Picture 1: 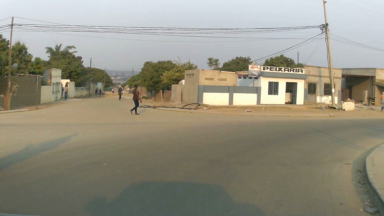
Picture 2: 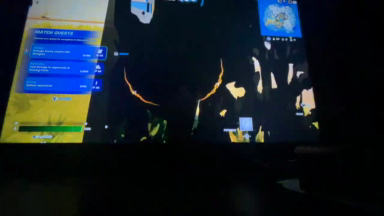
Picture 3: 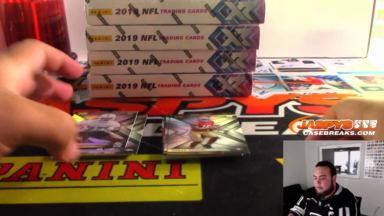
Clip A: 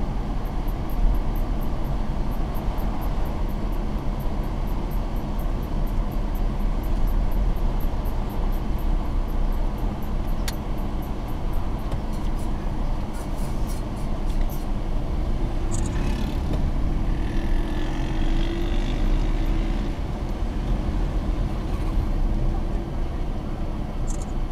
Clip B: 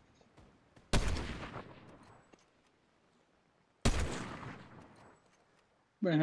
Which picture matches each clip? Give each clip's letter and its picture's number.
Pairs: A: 1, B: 2